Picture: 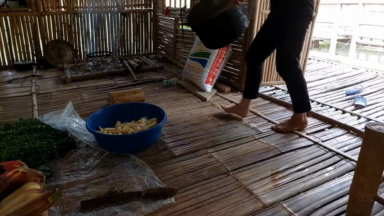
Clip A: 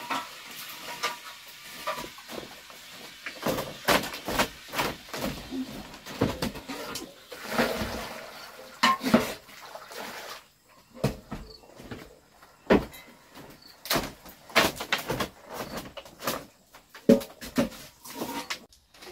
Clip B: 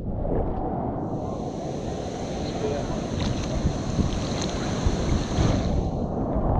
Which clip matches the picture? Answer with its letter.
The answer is A